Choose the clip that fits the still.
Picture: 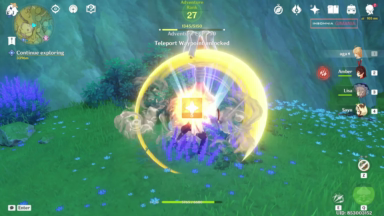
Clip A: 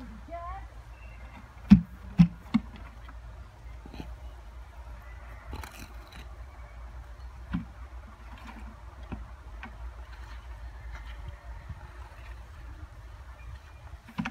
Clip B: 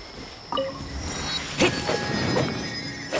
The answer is B